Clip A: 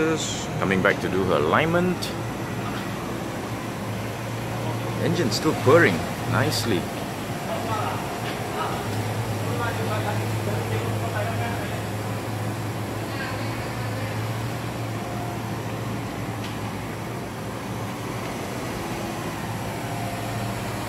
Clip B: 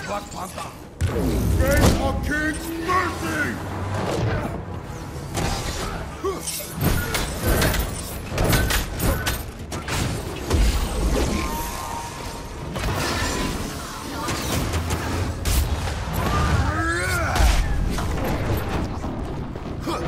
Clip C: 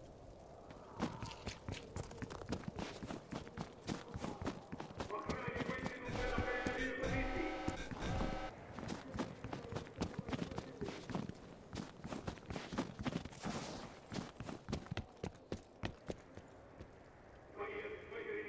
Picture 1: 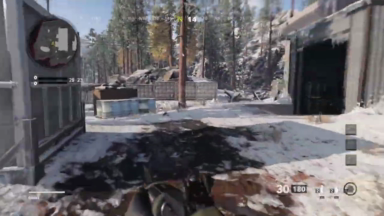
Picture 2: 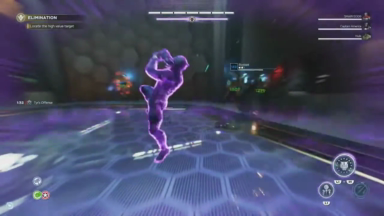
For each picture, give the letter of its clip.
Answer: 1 C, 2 B